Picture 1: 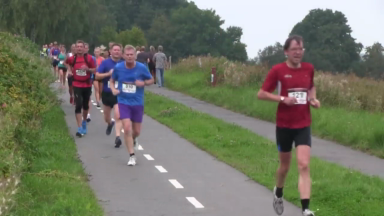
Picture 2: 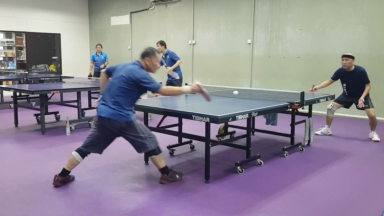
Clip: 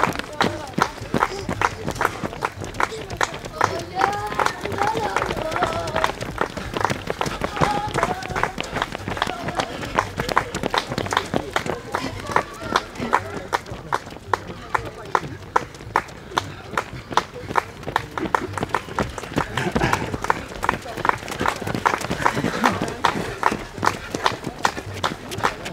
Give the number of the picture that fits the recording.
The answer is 1